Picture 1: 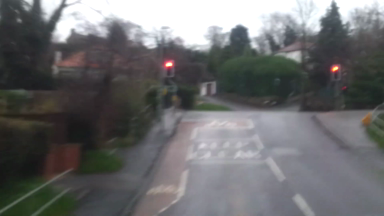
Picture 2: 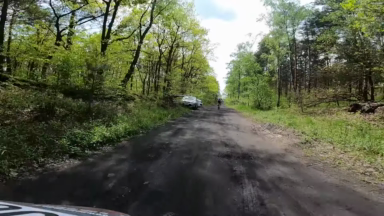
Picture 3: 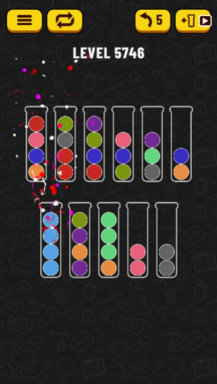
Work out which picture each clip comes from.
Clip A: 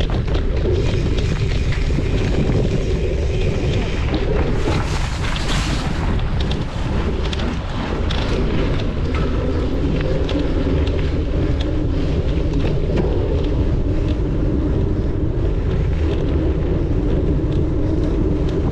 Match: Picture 2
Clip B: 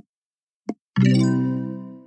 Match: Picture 3